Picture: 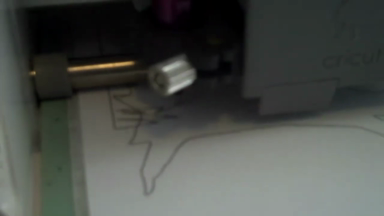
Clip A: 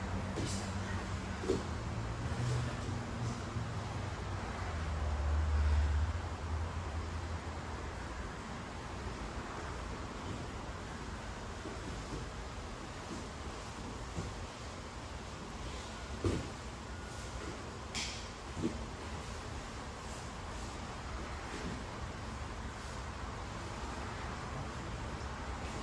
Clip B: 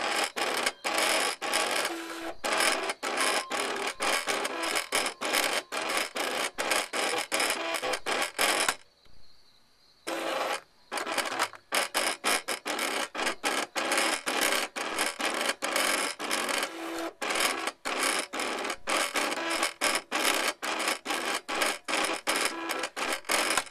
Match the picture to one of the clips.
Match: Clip B